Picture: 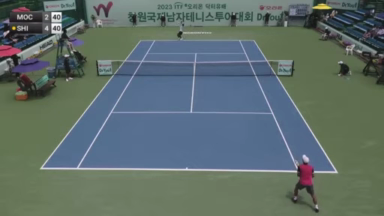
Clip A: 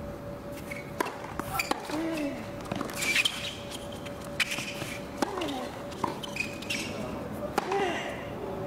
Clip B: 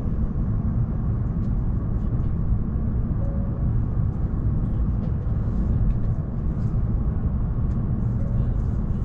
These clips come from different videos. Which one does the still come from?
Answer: A